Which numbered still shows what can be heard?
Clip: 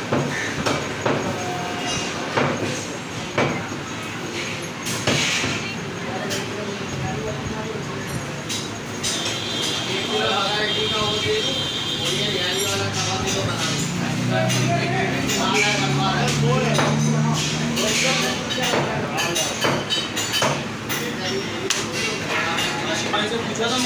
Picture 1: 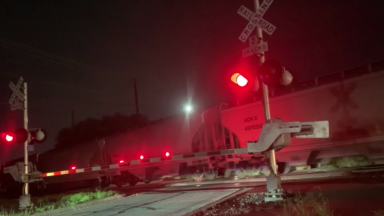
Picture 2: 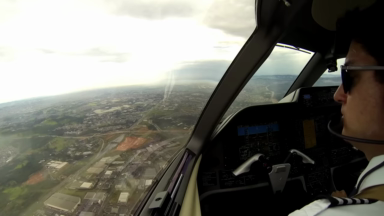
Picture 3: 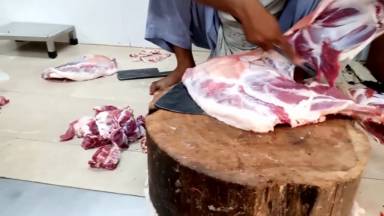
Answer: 3